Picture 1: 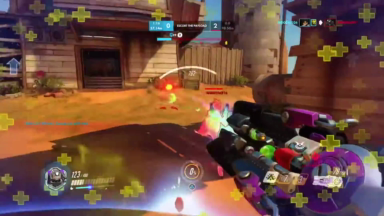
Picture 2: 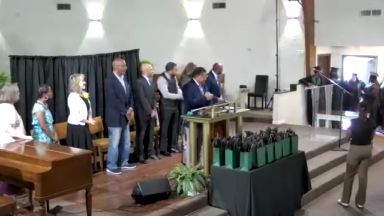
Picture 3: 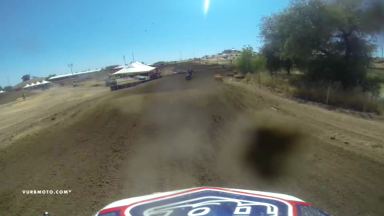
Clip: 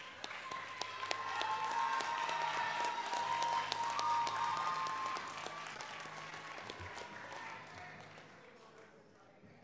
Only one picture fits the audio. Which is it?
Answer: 2